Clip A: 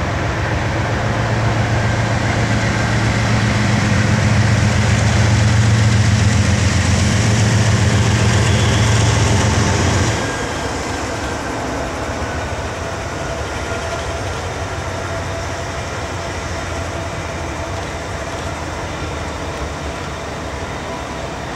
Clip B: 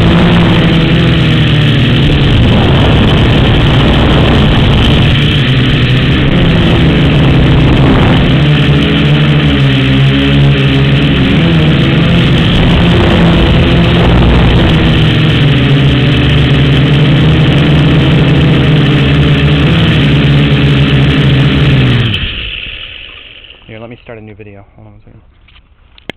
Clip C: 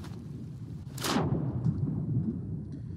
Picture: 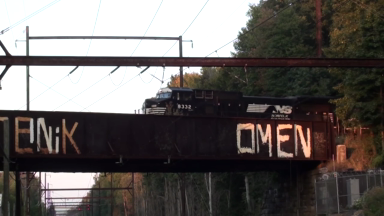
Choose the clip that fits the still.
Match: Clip A